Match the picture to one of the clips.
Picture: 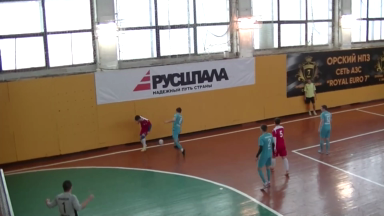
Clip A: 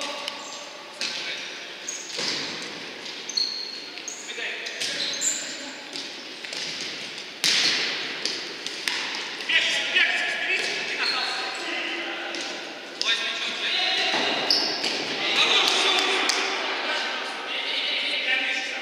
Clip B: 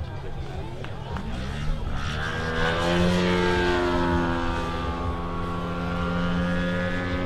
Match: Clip A